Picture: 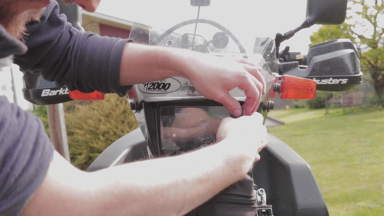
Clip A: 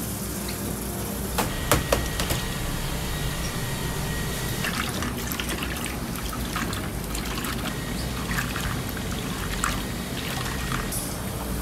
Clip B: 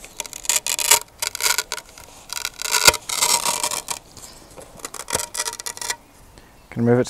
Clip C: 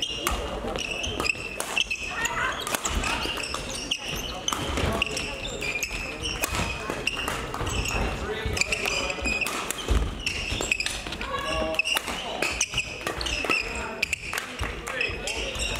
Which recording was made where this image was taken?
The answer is B